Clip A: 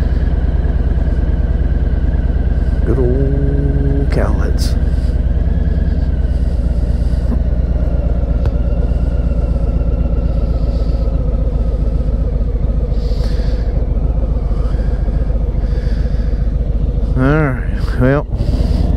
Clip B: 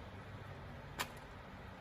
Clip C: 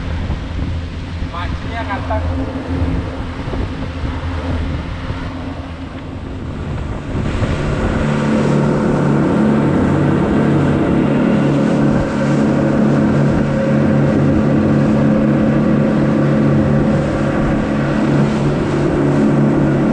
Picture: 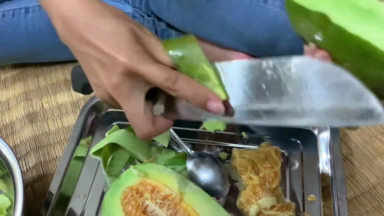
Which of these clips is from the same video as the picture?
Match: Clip B